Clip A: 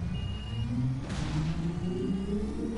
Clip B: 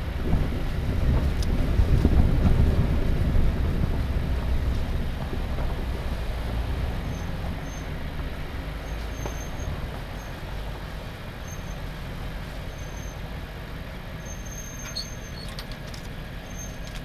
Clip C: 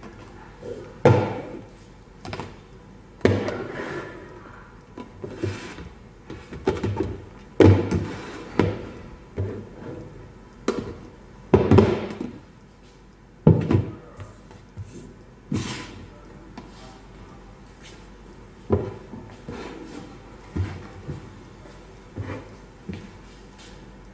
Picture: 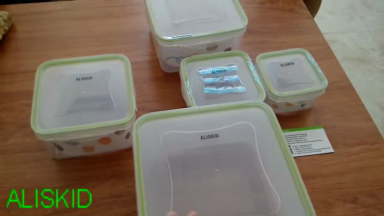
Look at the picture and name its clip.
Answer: C